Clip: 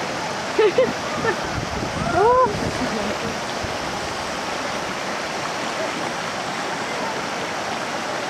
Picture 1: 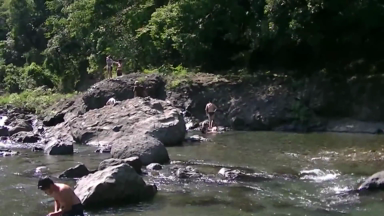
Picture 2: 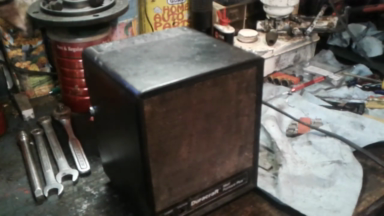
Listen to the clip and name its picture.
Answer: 1